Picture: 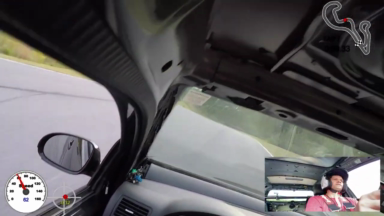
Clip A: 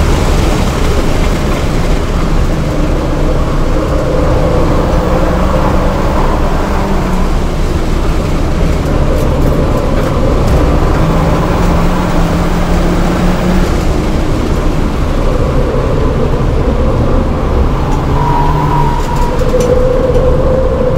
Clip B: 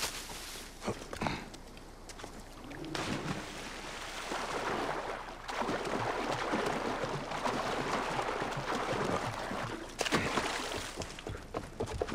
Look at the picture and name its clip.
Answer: A